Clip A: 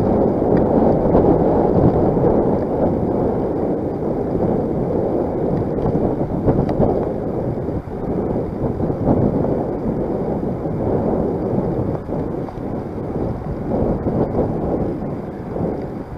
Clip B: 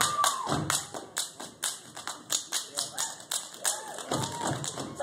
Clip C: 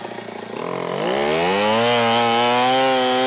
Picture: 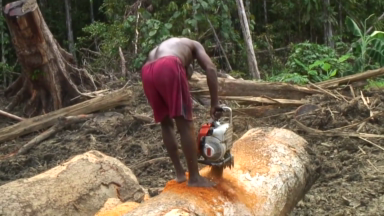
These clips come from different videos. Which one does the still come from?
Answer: C